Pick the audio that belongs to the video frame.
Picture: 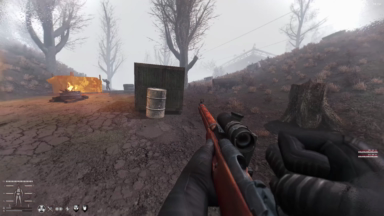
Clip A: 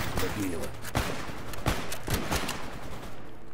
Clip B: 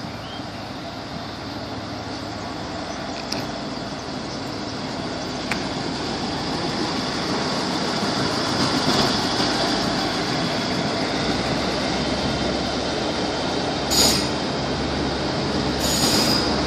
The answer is A